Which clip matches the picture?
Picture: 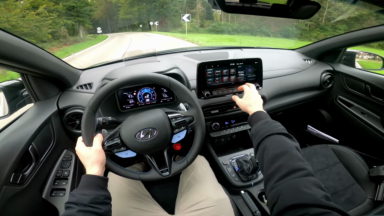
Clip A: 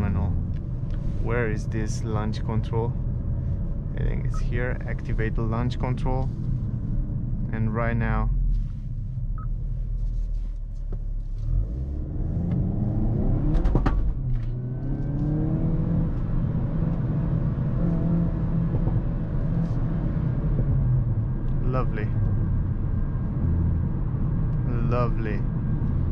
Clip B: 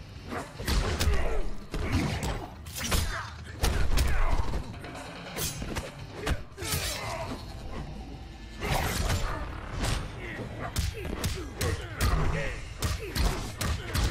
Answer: A